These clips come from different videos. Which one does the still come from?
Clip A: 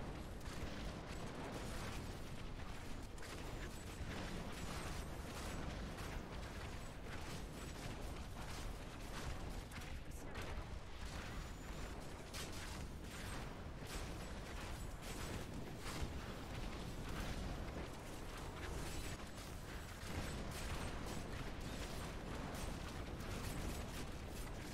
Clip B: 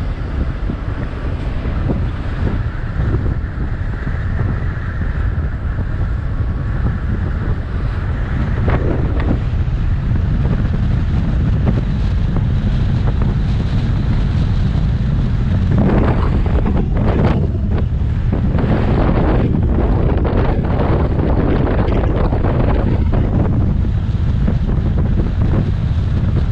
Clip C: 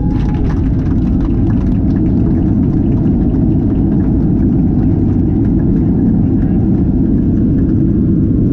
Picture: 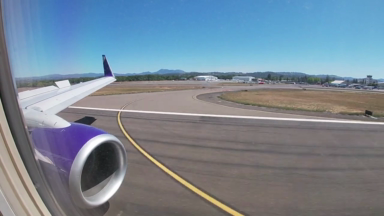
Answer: C